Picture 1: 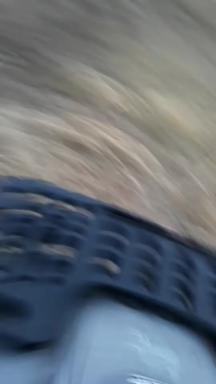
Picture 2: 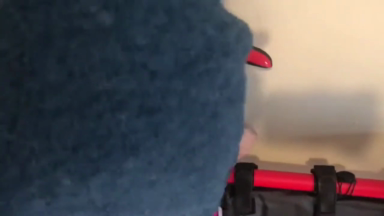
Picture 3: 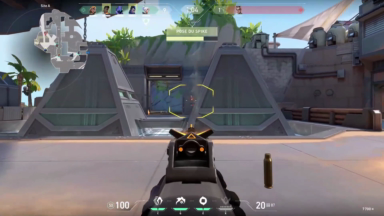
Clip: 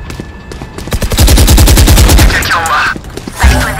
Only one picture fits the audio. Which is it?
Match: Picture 3